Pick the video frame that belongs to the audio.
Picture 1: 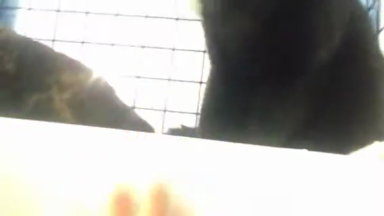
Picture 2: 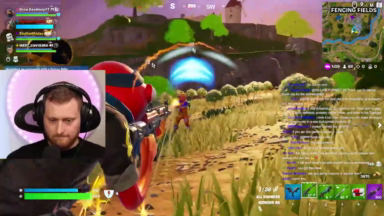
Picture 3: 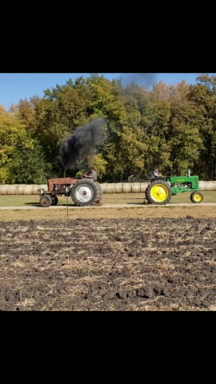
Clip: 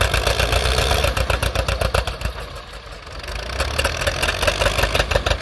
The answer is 3